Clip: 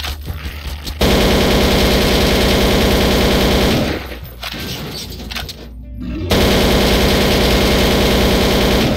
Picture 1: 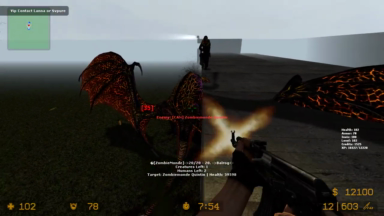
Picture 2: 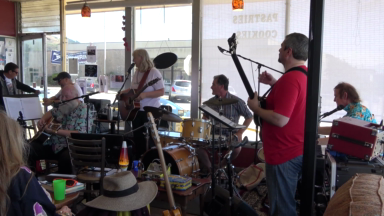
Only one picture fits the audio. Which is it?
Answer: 1